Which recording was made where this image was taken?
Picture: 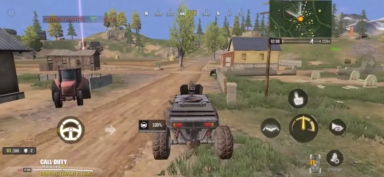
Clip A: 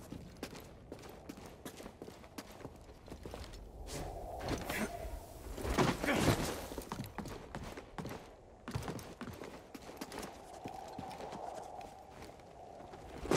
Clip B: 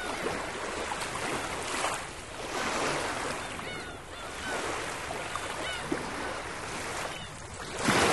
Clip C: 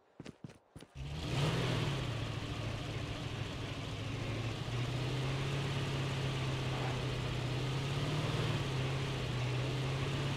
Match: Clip C